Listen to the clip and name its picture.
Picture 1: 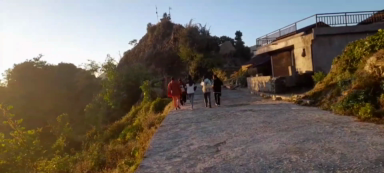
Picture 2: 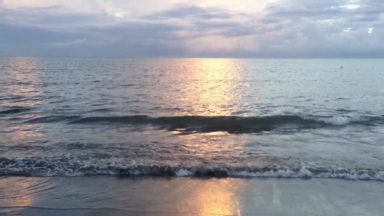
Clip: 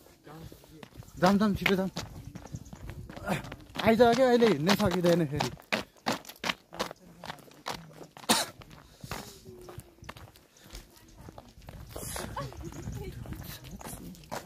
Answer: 1